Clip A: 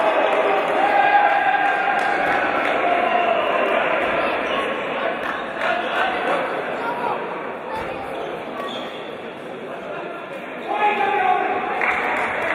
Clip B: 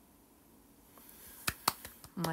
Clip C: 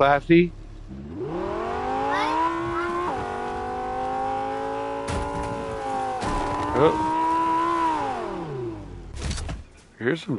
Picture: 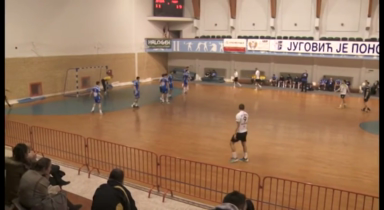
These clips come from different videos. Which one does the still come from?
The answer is A